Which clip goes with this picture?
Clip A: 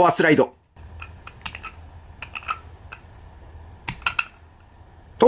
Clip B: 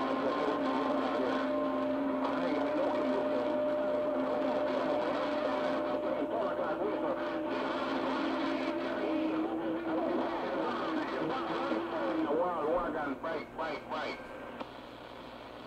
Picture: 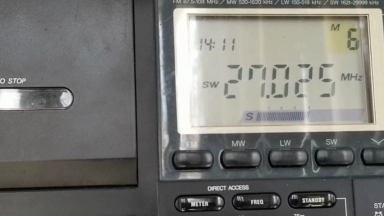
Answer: B